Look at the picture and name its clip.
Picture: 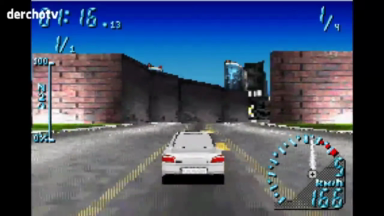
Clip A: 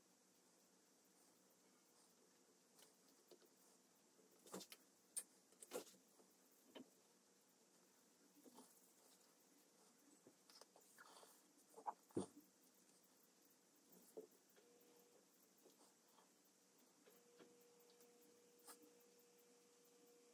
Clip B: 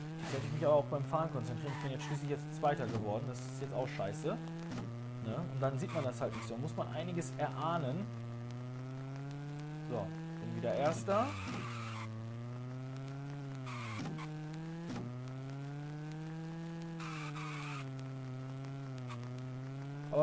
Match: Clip B